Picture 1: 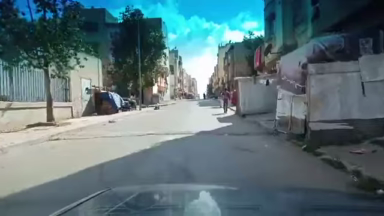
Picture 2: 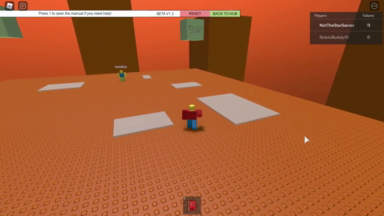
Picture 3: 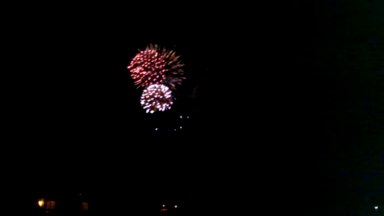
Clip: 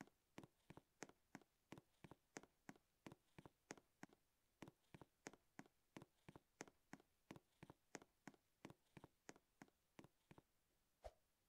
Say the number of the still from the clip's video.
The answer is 2